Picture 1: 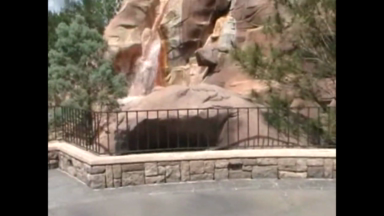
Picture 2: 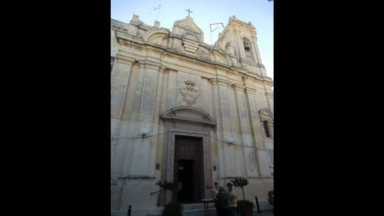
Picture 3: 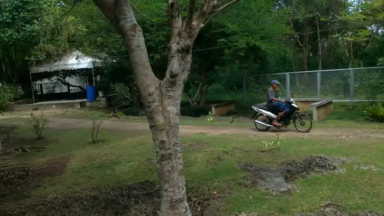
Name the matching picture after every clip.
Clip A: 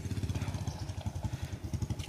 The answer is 3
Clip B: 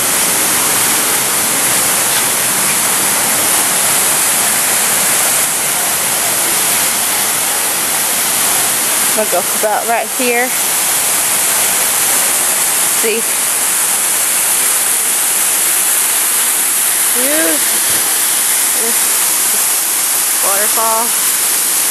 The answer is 1